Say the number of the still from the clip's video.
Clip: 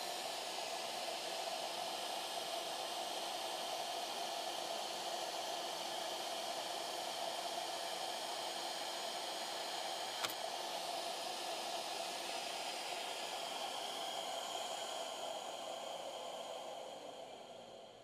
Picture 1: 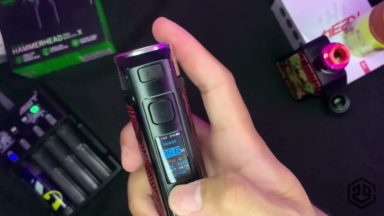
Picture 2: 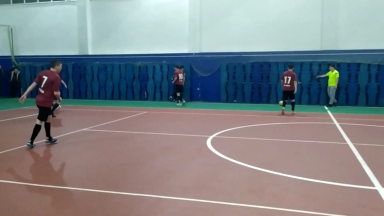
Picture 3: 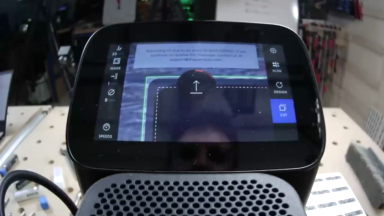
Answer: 3